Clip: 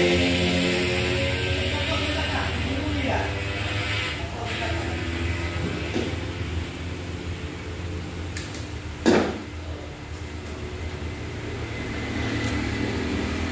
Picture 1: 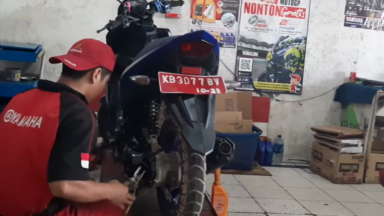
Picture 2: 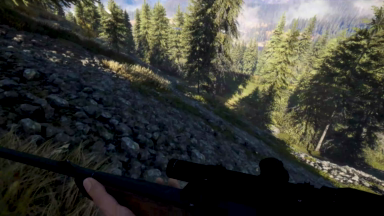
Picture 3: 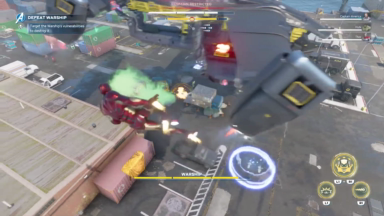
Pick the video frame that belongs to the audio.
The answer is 1